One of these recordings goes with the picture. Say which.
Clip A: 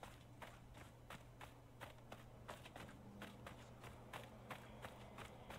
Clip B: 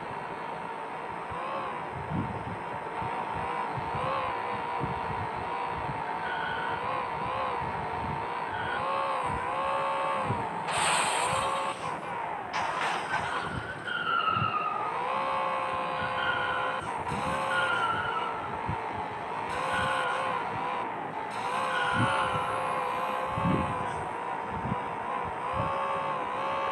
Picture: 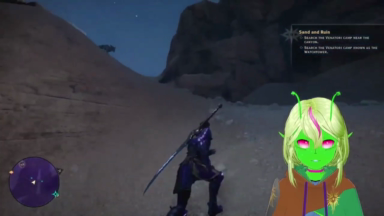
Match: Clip A